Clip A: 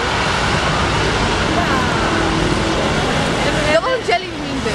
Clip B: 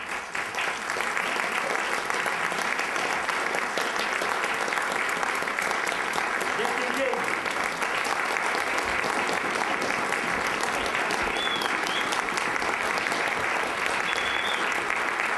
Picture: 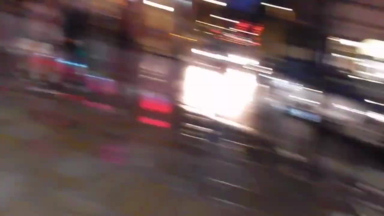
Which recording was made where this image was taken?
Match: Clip A